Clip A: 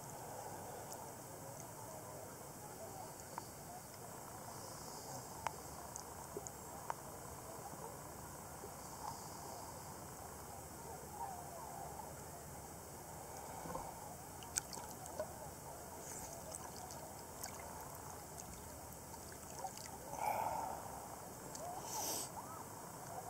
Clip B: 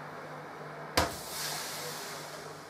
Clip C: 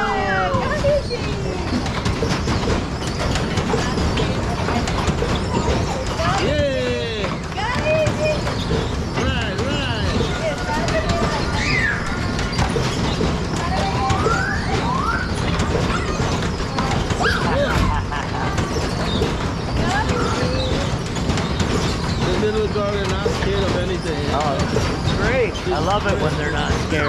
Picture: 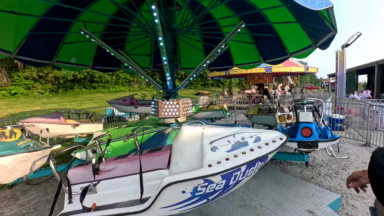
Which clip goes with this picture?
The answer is C